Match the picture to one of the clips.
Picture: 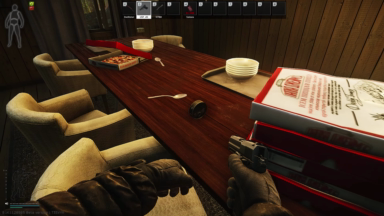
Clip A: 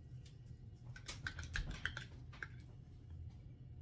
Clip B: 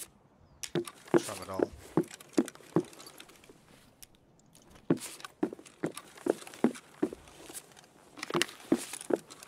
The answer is B